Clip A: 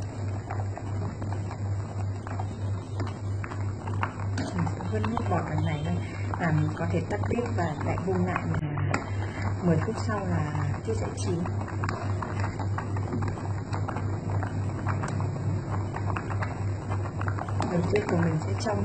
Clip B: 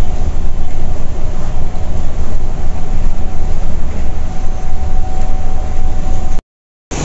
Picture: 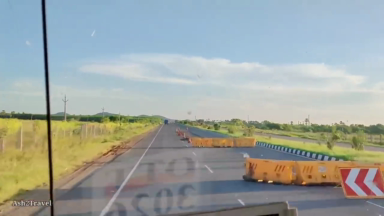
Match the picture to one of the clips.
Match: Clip B